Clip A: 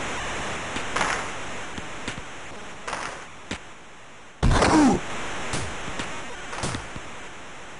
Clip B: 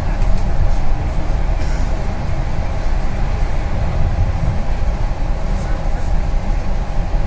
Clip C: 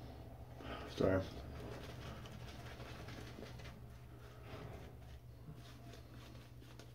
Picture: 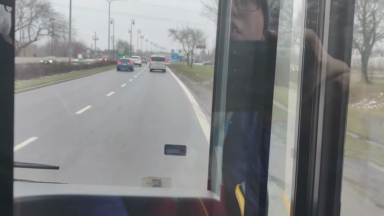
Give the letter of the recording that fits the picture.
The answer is B